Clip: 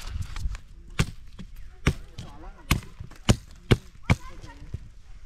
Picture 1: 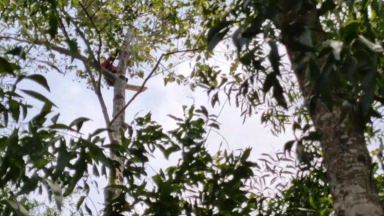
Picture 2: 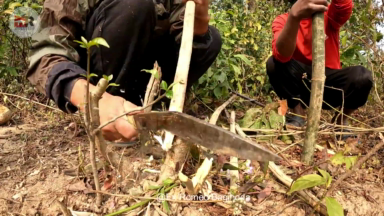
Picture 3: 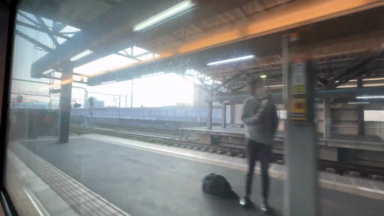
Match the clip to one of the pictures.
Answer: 2